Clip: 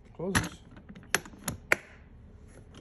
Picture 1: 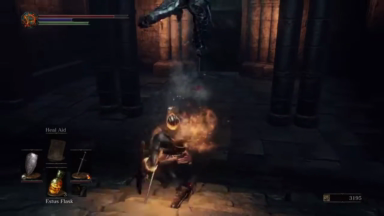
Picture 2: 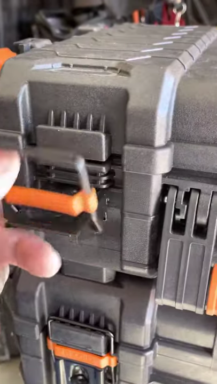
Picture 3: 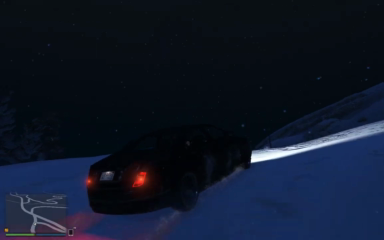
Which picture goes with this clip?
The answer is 2